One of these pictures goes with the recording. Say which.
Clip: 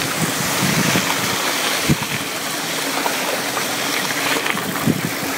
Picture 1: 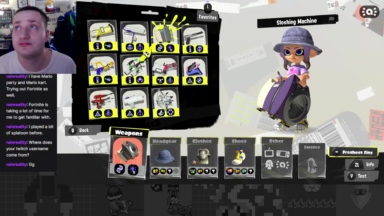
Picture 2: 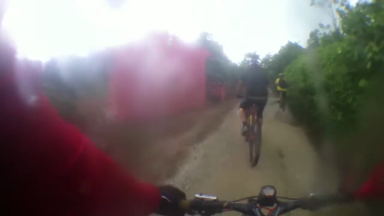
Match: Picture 2